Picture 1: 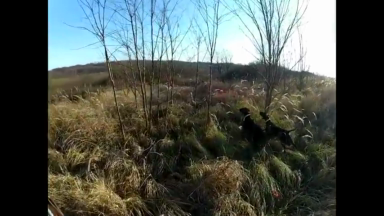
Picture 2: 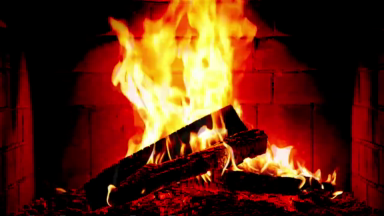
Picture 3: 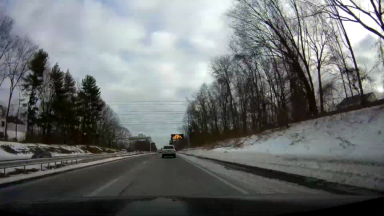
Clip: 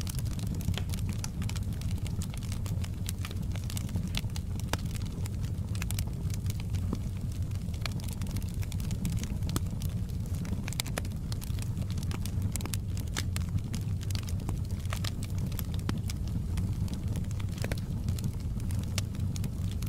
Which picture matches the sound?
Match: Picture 2